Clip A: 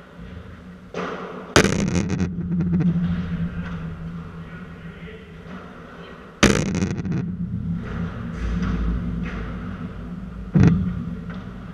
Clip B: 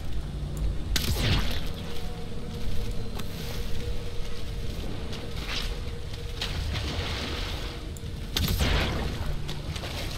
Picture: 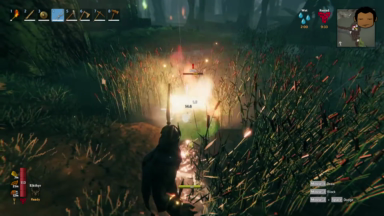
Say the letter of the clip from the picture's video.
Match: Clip B